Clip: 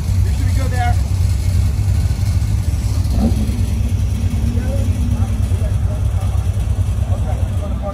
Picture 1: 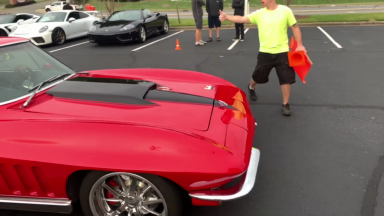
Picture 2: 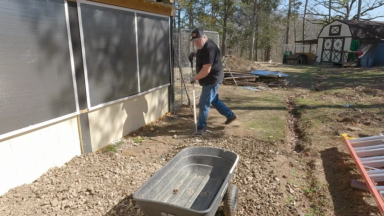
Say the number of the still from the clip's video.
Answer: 1